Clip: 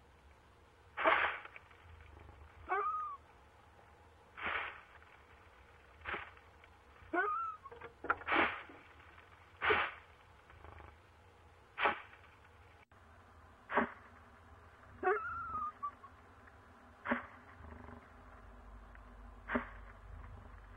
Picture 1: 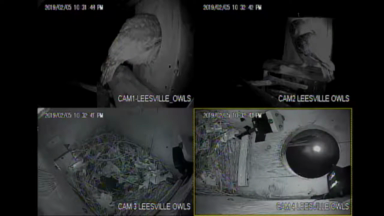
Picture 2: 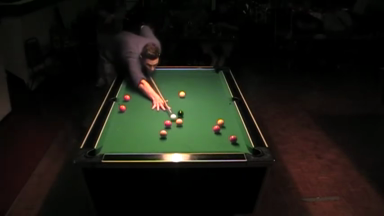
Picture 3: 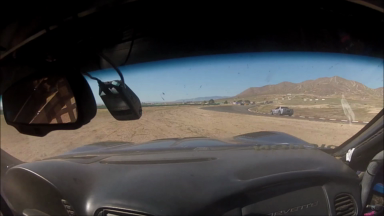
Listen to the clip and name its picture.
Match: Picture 1